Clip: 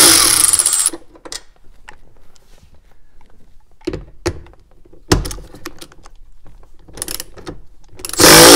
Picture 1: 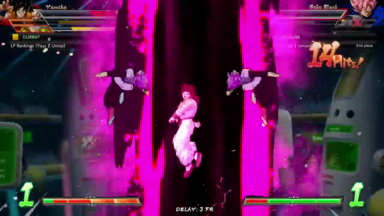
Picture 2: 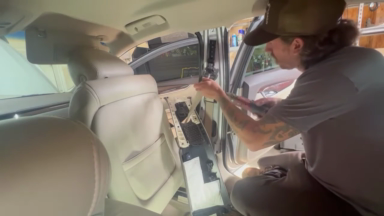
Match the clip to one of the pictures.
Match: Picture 2